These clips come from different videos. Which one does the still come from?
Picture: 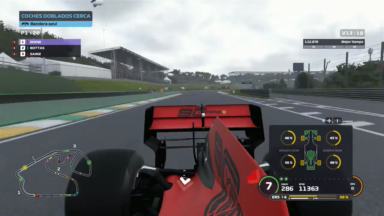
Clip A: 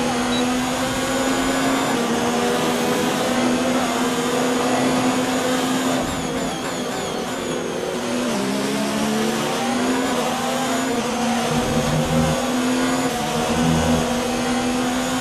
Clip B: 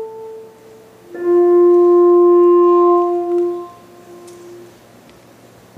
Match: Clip A